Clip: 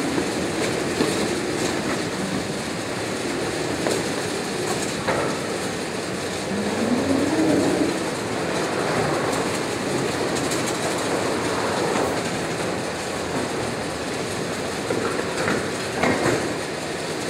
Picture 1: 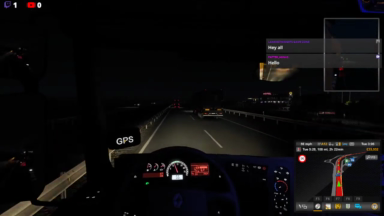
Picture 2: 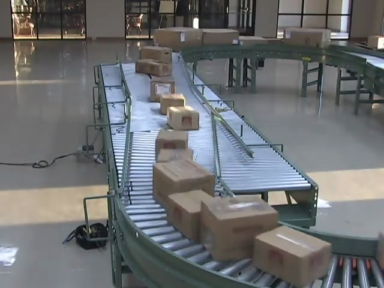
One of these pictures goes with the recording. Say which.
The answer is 2